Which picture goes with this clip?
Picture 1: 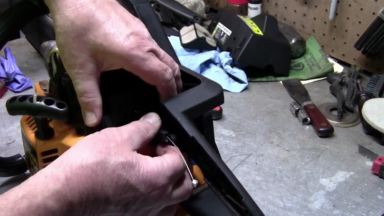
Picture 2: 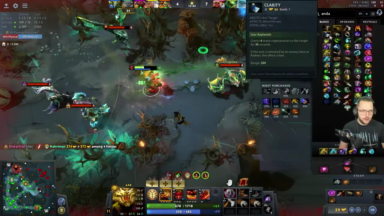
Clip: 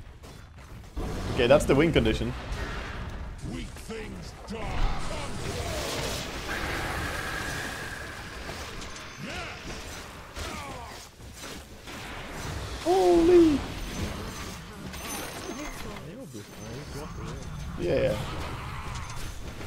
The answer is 2